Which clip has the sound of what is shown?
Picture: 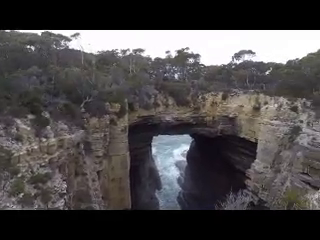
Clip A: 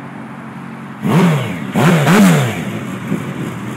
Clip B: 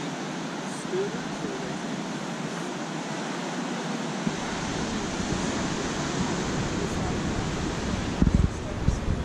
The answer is B